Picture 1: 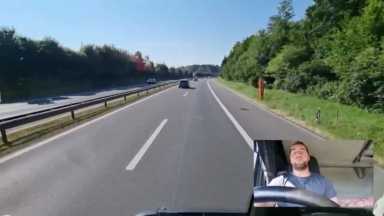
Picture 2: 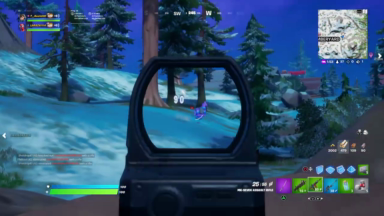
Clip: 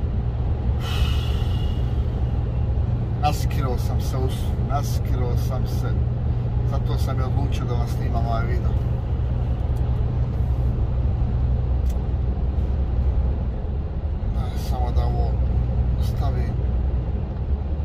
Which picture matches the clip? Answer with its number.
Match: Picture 1